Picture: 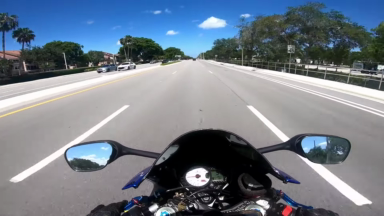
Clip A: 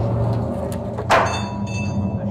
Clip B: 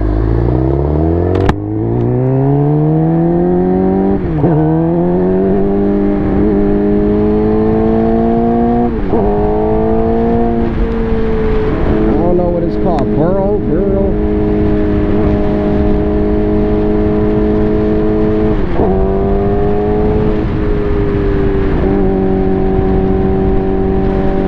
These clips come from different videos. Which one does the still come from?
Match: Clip B